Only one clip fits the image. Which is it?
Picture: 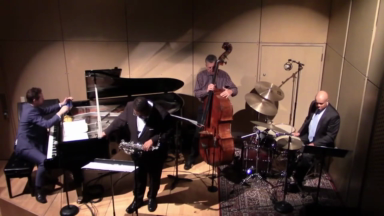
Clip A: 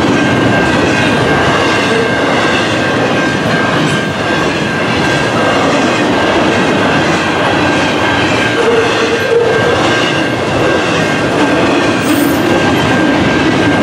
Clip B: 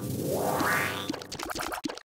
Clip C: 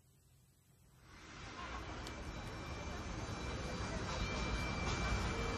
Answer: C